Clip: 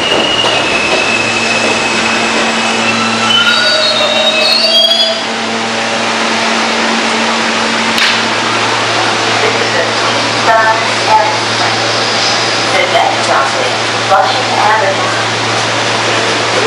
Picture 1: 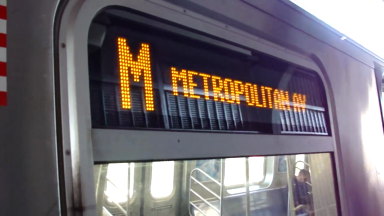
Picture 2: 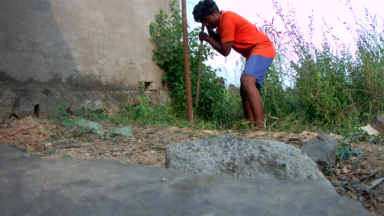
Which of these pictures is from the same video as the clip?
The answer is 1